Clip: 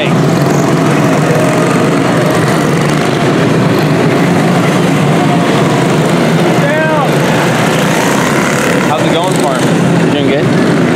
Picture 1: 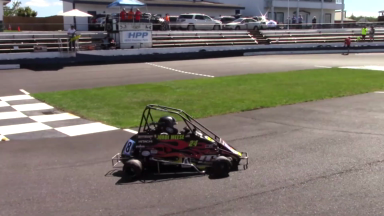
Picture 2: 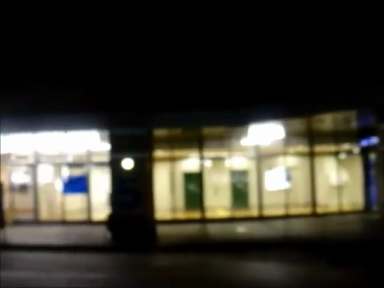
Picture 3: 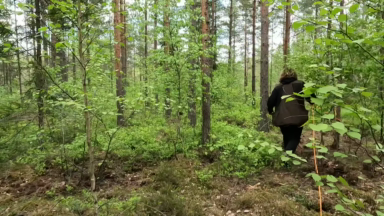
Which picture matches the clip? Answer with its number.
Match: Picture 1